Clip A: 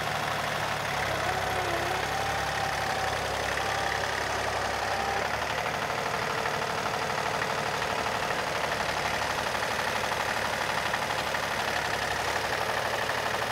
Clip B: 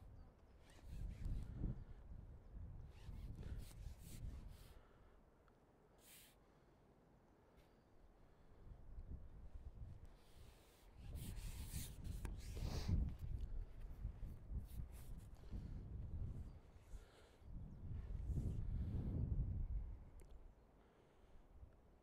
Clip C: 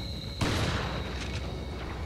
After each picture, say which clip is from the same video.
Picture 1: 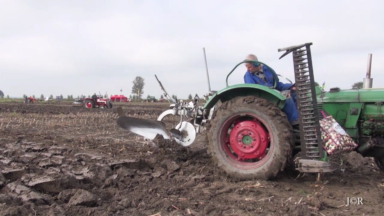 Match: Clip A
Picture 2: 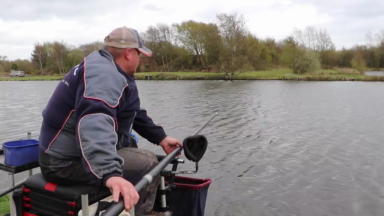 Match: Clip B